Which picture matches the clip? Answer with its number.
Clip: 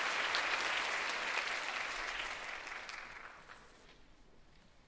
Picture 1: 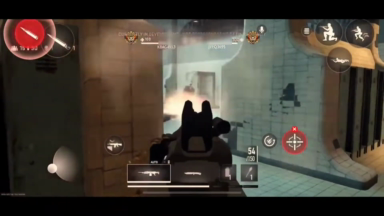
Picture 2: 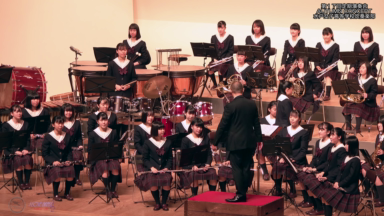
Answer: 2